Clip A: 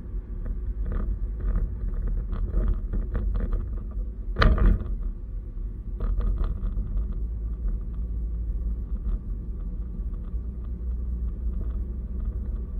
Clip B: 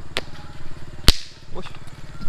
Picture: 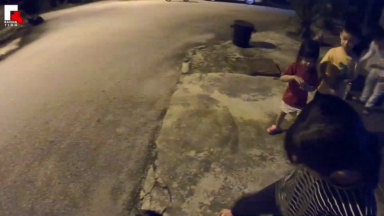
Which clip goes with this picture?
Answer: B